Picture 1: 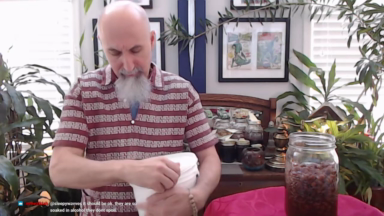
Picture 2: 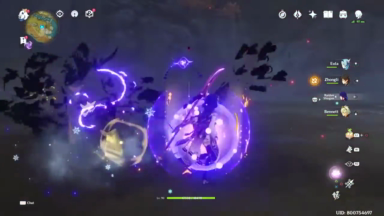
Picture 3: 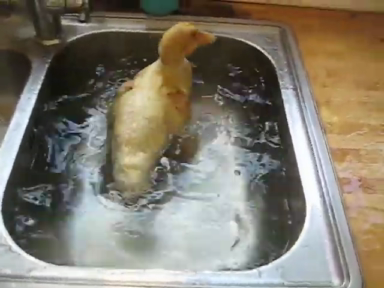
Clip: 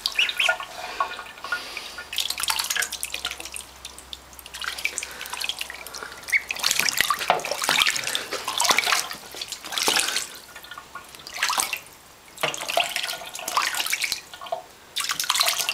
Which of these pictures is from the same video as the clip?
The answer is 3